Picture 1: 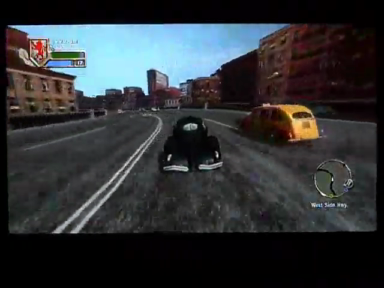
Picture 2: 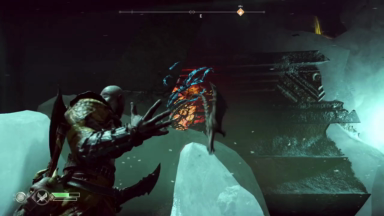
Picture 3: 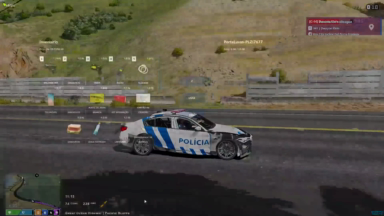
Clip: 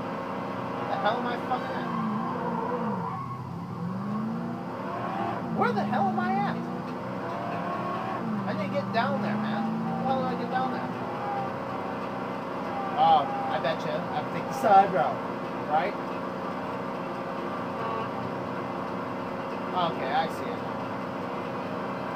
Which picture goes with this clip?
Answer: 1